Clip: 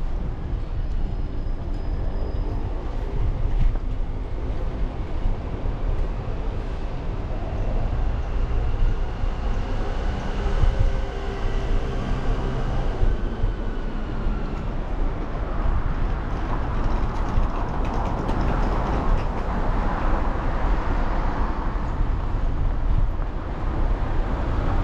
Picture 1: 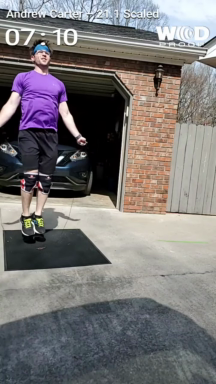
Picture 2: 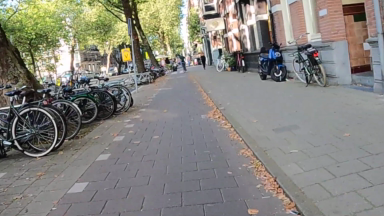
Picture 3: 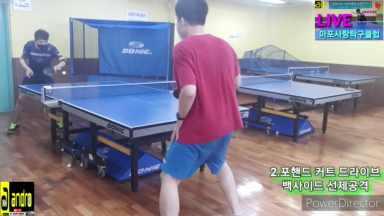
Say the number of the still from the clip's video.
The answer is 2